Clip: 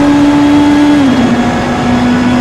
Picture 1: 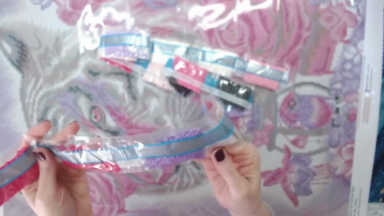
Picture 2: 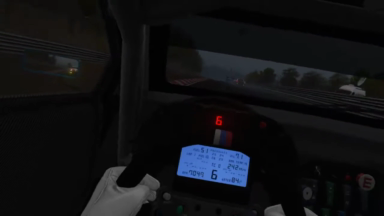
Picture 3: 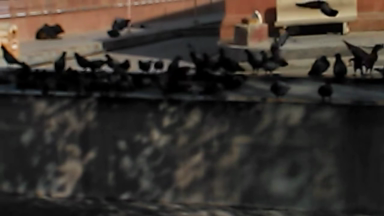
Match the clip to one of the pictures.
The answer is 2